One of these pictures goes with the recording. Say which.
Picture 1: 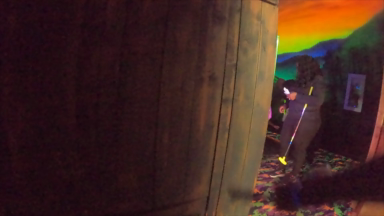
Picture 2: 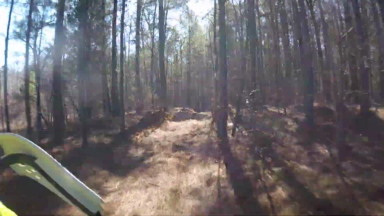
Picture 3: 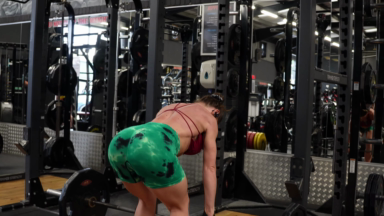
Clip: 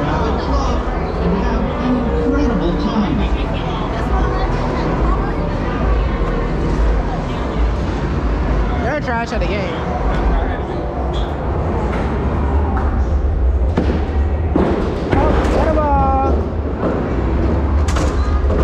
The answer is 1